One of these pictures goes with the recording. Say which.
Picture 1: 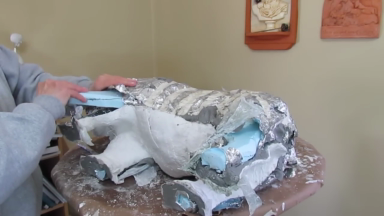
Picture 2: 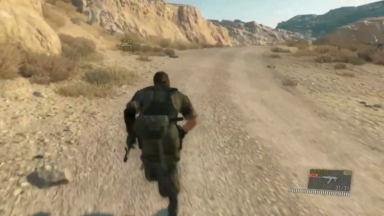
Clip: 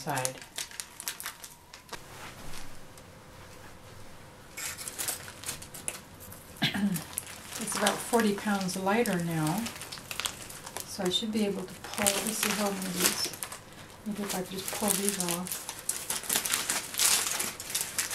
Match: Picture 1